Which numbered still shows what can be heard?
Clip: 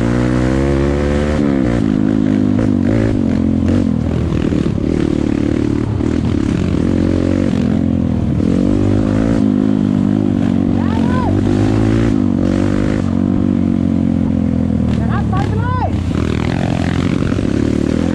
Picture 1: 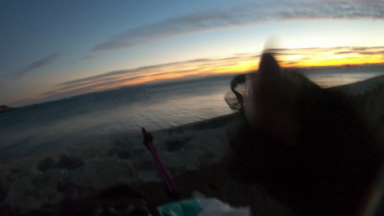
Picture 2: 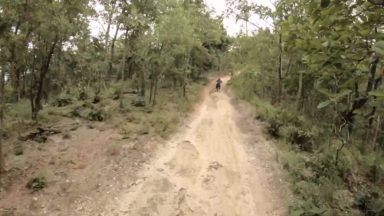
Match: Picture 2